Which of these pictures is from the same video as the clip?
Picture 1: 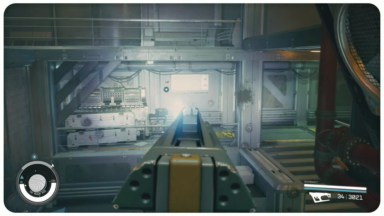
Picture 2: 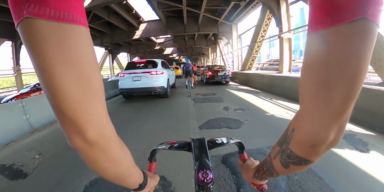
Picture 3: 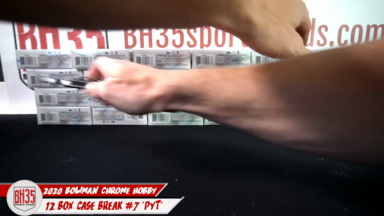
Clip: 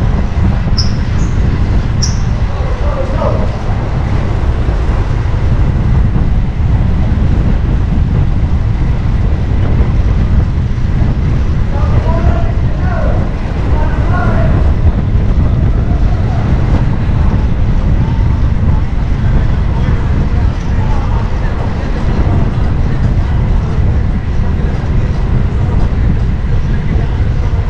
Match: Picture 2